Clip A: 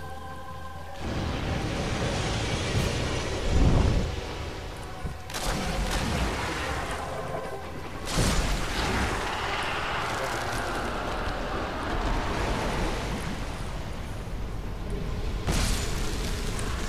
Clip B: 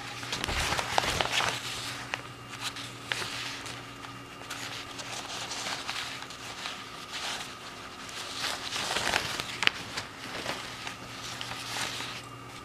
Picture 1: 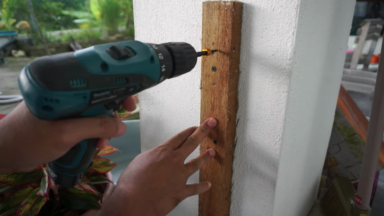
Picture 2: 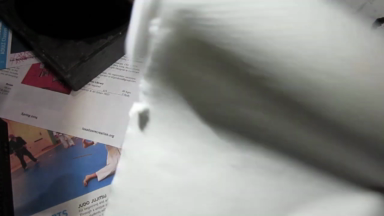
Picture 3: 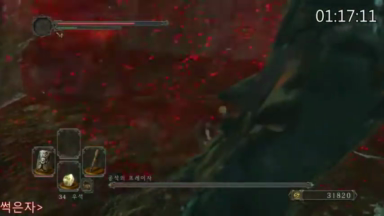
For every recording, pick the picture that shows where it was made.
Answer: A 3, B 2